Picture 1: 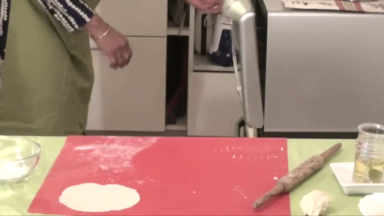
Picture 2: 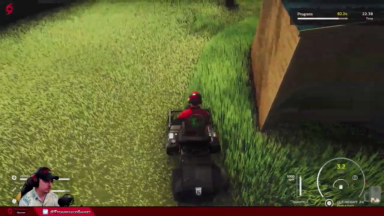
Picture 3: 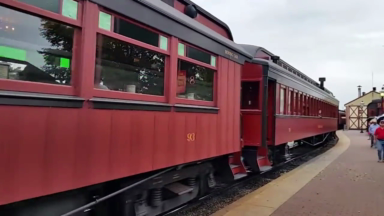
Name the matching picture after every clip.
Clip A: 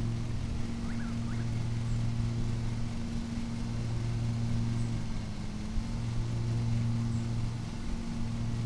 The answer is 2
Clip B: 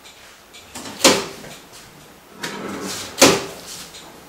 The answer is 1